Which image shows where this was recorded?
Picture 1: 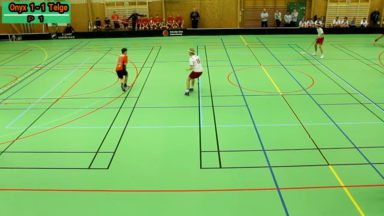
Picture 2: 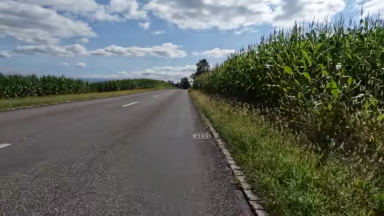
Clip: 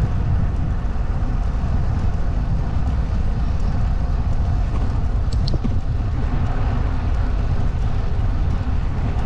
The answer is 2